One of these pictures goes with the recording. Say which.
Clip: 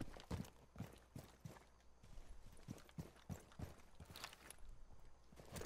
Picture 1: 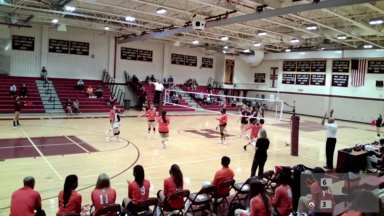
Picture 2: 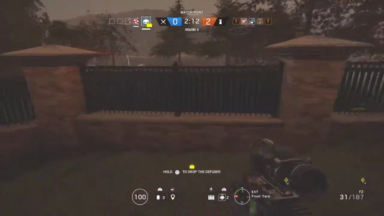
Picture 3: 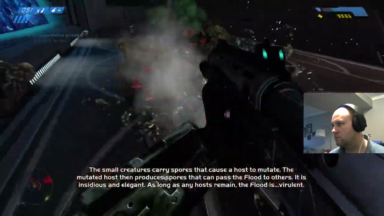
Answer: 2